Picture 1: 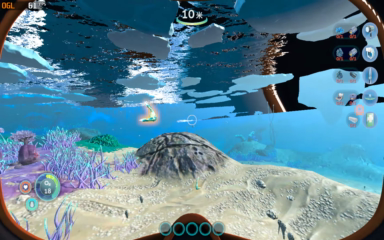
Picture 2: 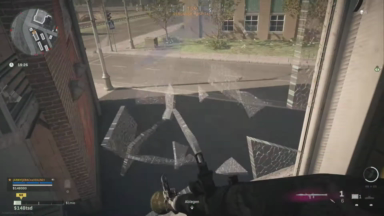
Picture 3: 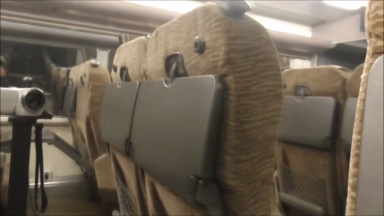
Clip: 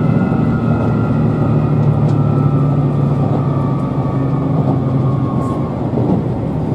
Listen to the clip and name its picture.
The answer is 3